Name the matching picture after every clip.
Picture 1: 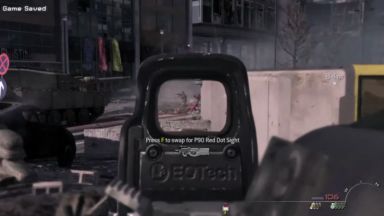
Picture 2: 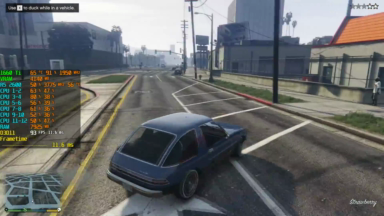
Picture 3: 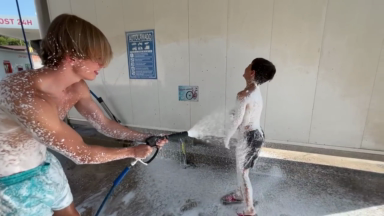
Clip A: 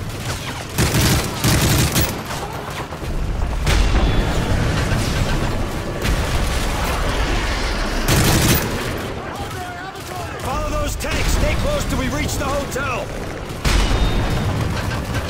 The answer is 1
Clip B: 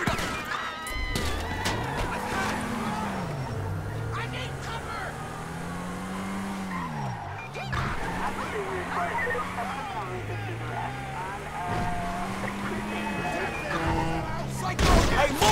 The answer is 2